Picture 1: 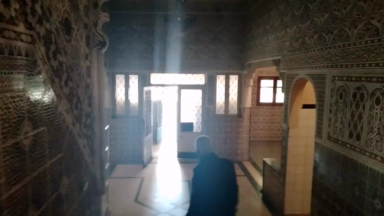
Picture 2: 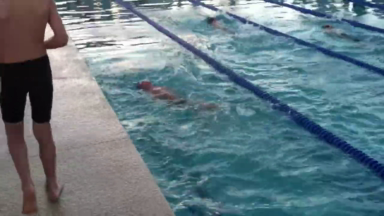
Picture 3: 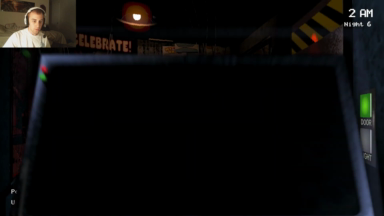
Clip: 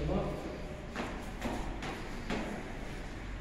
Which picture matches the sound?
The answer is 1